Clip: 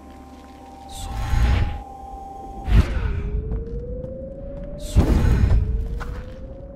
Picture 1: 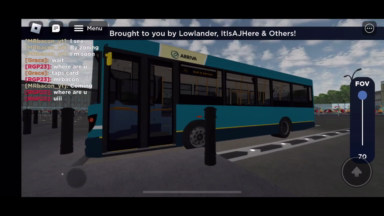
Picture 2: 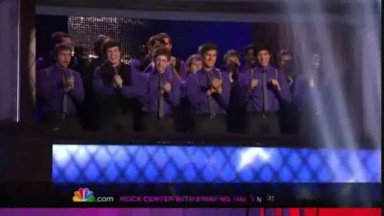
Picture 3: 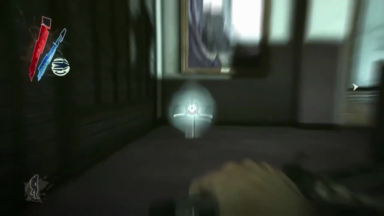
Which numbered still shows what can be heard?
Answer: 3